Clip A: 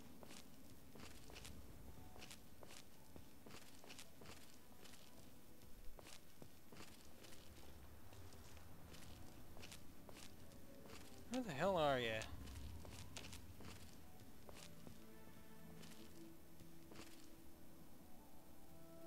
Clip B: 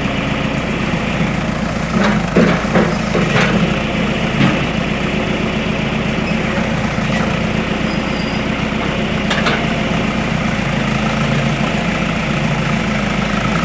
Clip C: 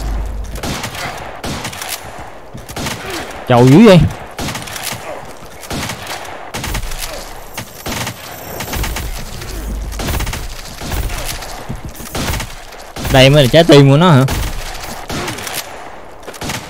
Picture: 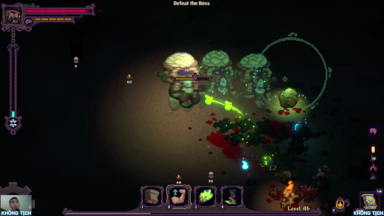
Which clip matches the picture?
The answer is C